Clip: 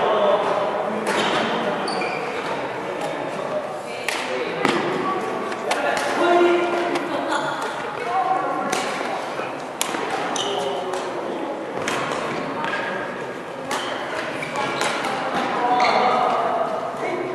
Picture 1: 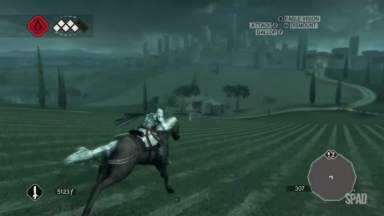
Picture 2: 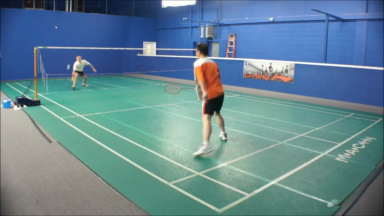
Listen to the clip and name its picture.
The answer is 2